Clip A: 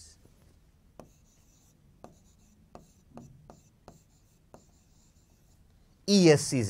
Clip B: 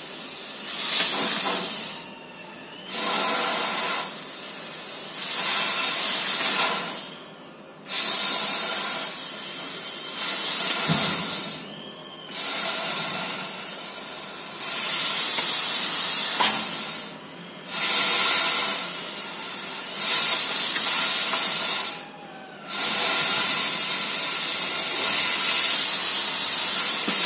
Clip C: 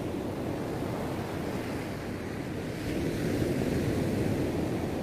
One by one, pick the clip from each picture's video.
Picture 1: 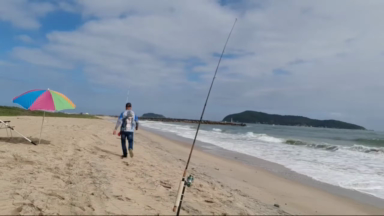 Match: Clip C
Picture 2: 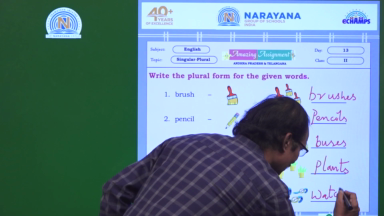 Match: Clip A